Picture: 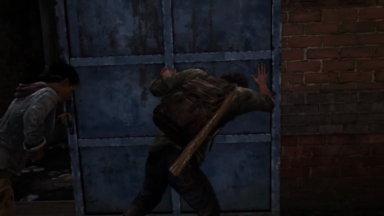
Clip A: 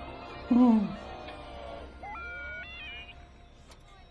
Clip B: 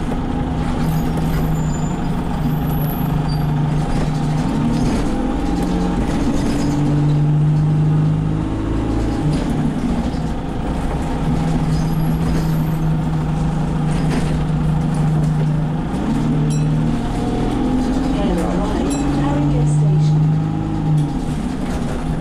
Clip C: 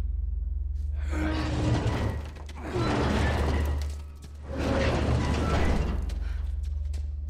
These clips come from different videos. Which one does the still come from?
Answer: C